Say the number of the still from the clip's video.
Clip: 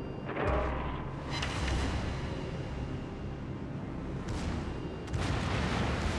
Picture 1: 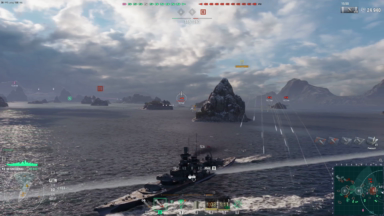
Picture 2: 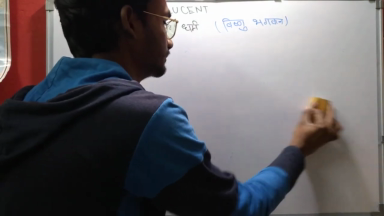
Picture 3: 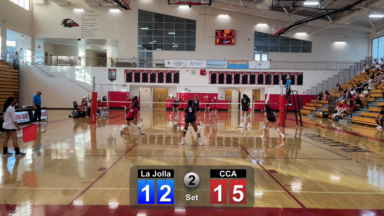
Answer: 1